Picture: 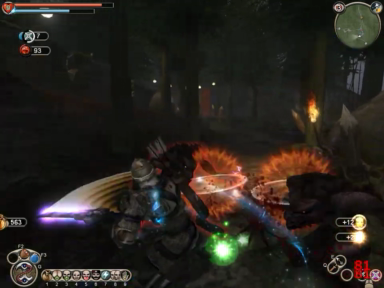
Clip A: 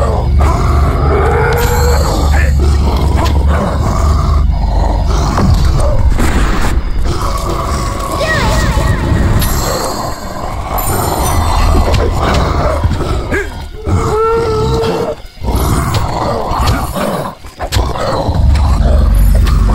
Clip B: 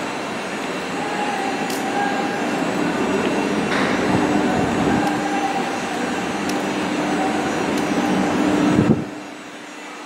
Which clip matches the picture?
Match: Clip A